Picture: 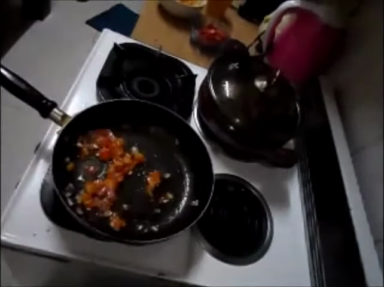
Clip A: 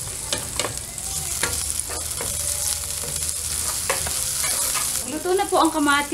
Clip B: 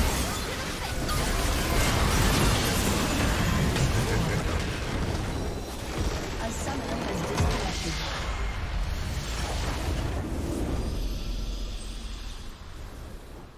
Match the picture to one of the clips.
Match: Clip A